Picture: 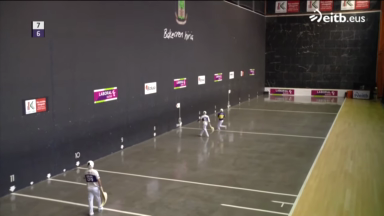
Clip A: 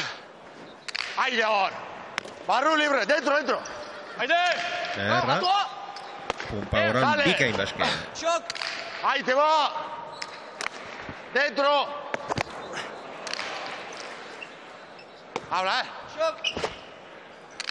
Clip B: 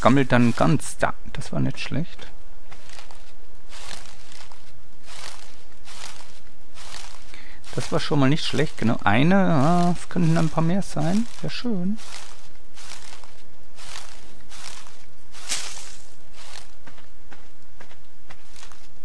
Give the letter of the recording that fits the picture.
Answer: A